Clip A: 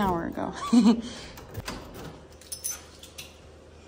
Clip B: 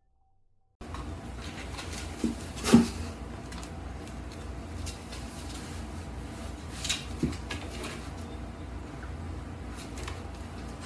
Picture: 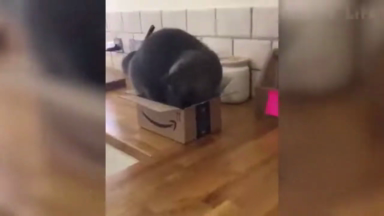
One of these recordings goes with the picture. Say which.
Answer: B